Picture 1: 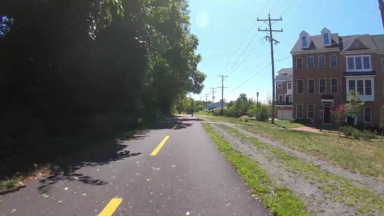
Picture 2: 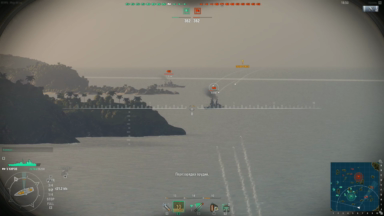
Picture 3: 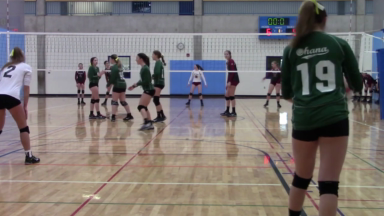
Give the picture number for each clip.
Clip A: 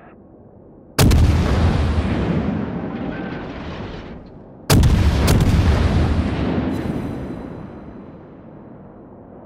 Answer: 2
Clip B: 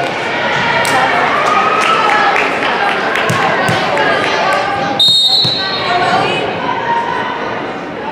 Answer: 3